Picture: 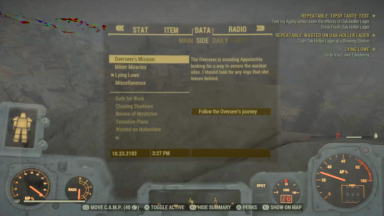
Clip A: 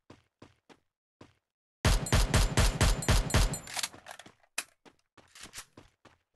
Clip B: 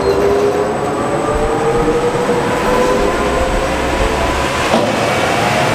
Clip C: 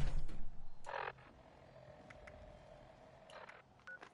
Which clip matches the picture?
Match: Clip C